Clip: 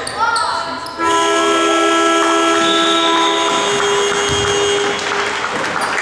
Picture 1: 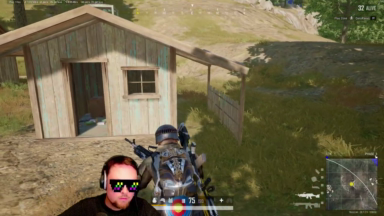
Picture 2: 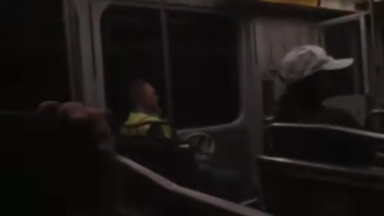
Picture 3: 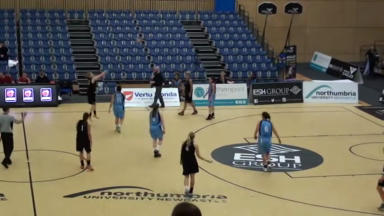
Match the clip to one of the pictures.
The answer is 3